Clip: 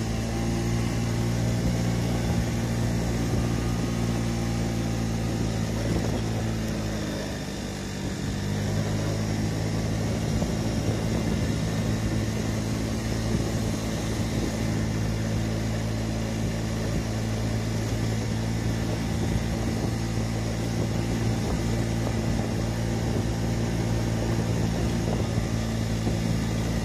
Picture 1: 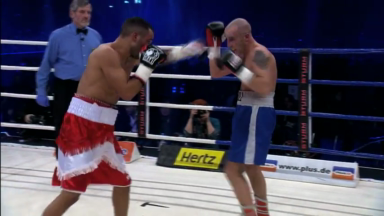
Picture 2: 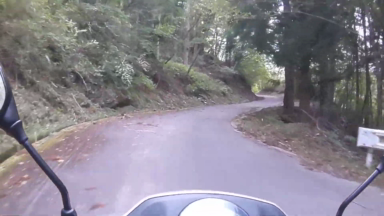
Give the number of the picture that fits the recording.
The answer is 2